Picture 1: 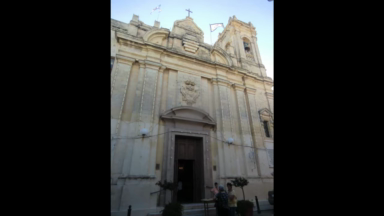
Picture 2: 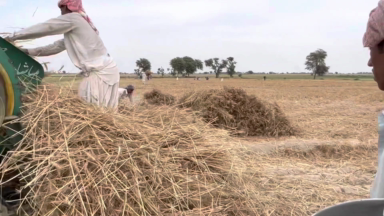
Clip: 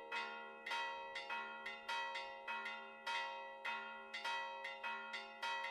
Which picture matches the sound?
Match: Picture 1